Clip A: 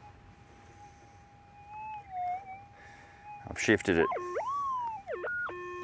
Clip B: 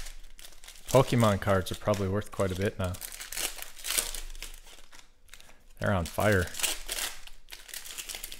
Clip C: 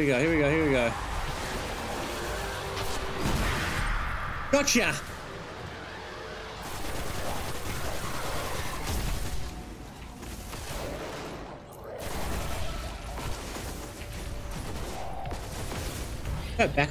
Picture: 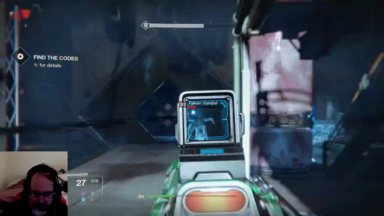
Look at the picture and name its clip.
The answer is C